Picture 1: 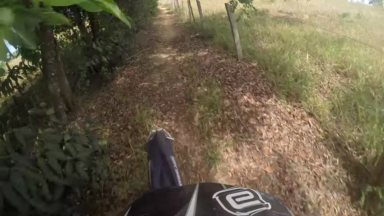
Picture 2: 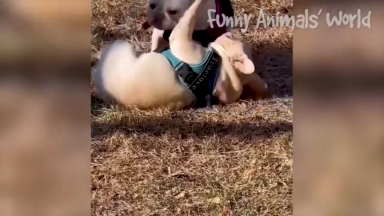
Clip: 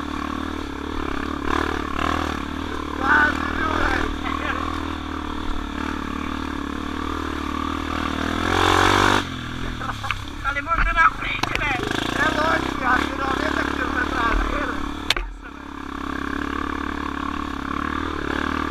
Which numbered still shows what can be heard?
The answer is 1